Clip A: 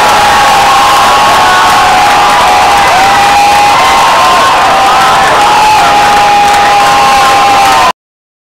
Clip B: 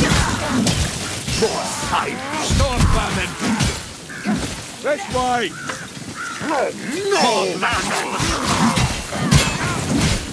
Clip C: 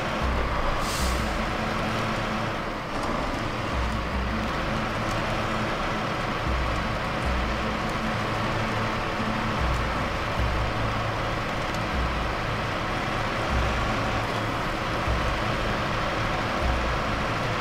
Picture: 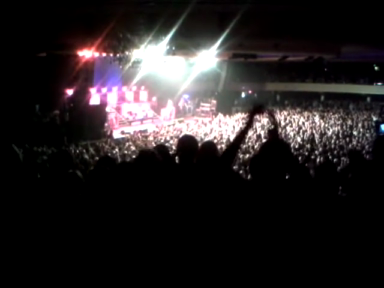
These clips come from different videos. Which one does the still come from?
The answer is A